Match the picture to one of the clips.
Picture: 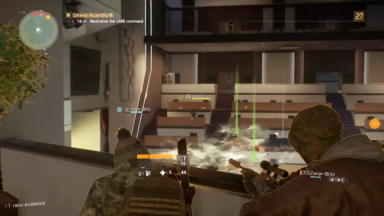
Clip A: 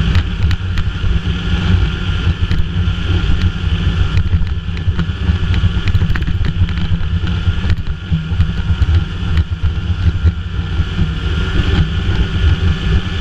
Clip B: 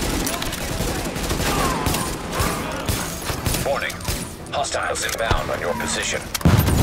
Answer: B